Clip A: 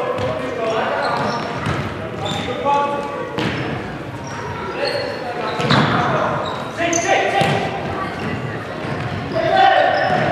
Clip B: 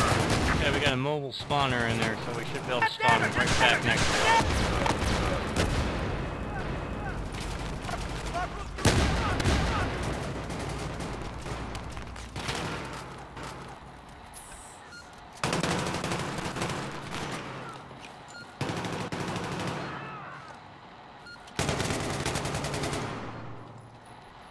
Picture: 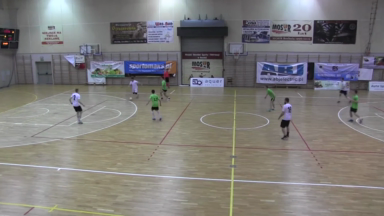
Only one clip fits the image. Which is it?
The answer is A